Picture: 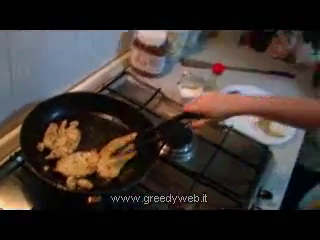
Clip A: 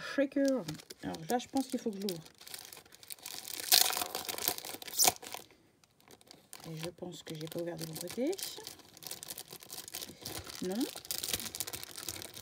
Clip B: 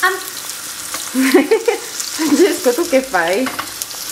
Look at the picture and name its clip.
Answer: B